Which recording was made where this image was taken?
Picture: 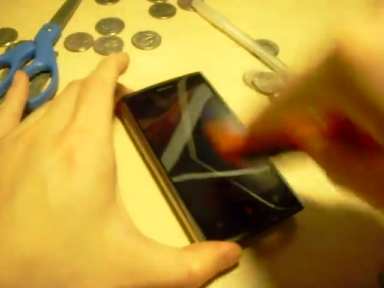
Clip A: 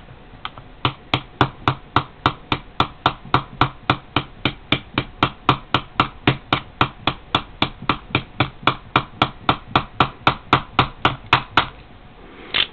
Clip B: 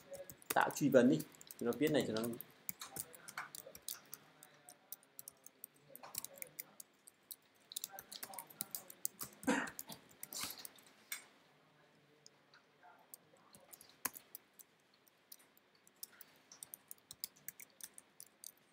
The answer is A